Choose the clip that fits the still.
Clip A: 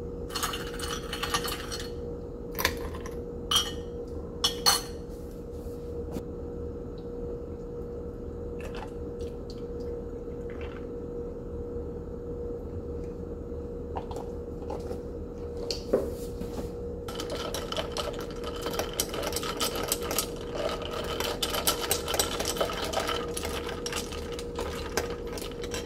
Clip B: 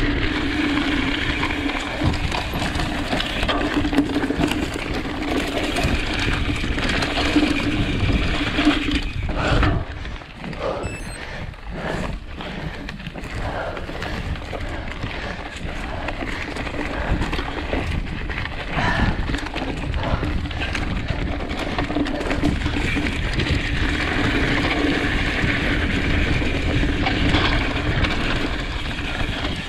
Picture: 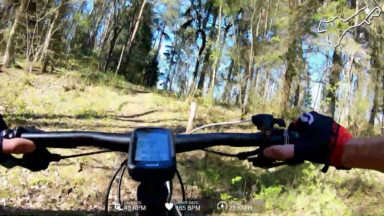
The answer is B